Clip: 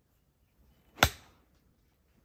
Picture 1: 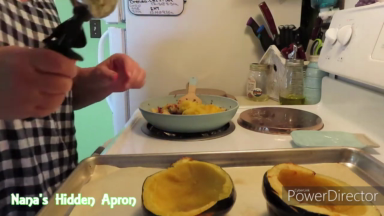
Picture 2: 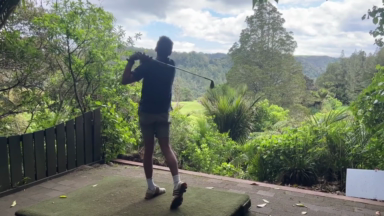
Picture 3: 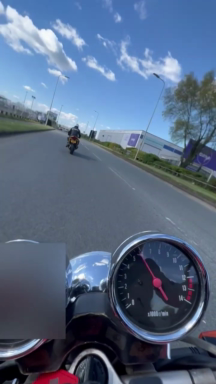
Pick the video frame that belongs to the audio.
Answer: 2